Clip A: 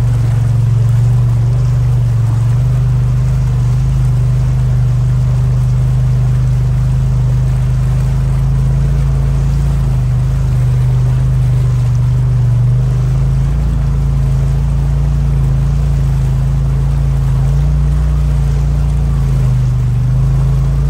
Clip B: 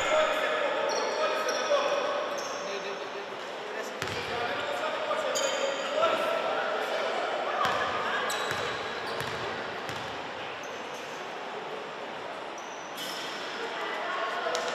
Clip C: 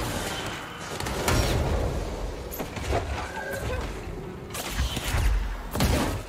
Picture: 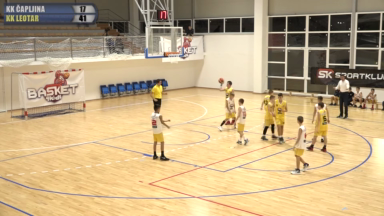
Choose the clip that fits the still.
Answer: B